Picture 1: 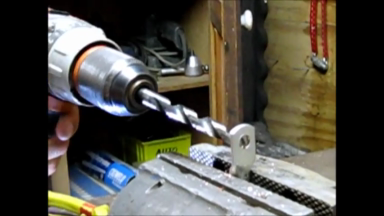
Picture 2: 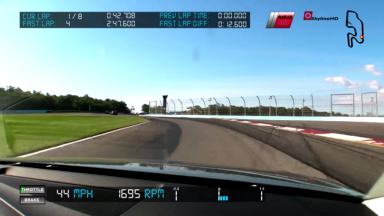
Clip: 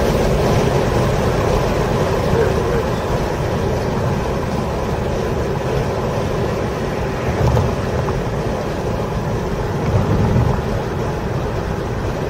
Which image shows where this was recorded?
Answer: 2